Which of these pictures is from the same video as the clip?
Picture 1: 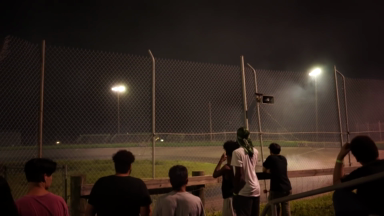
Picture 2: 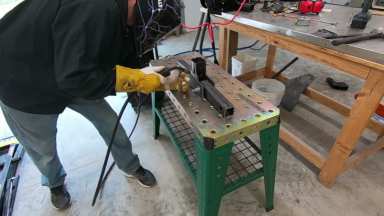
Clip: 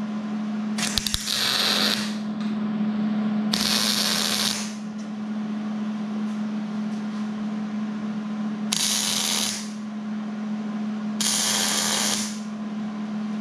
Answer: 2